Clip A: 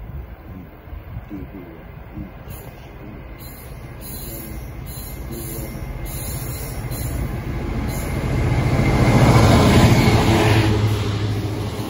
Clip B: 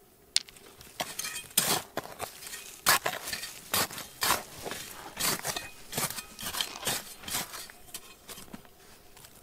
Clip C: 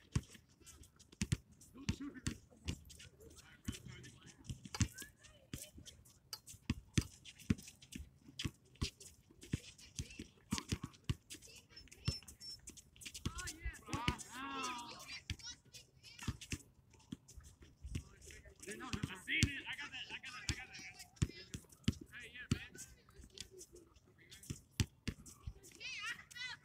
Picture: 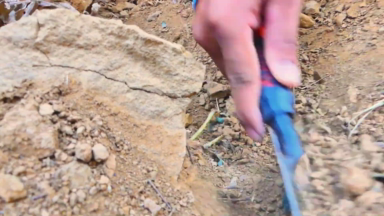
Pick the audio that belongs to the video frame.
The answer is B